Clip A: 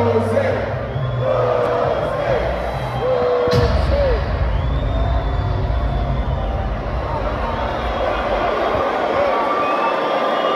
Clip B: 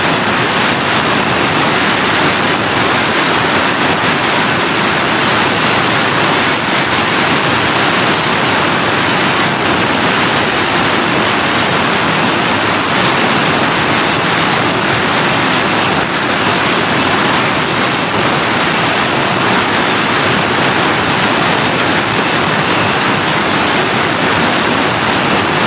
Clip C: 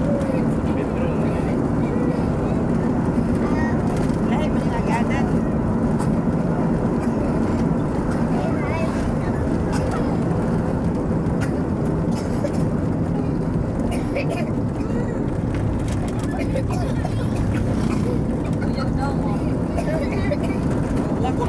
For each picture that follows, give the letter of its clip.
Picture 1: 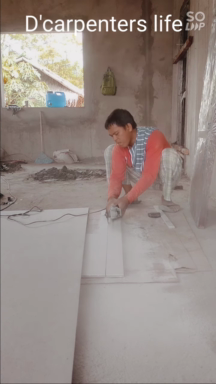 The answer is B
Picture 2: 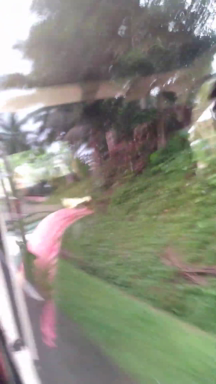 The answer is C